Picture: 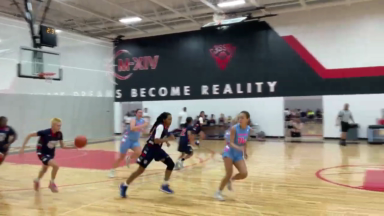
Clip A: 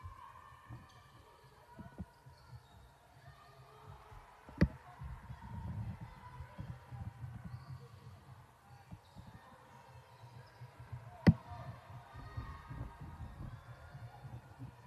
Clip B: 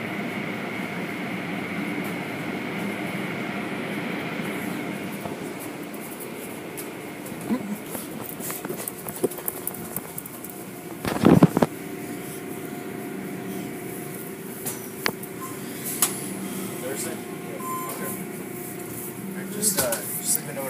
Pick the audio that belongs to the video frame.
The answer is A